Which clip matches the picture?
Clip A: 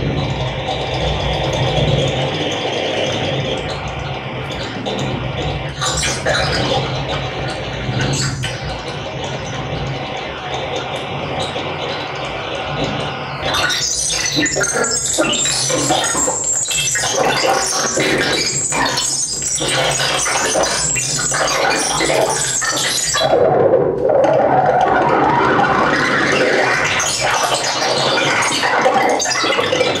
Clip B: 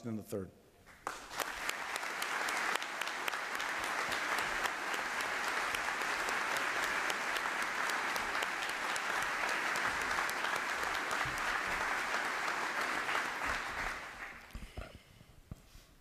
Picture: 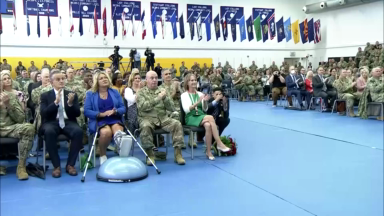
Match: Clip B